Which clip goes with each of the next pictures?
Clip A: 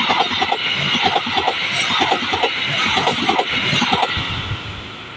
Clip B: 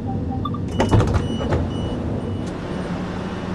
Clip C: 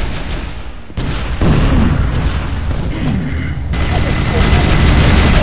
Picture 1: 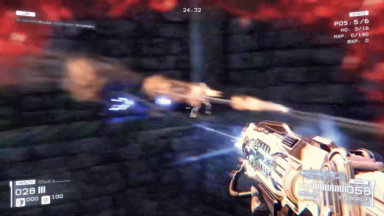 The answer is C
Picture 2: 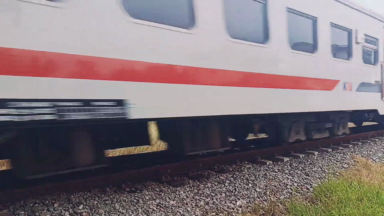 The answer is A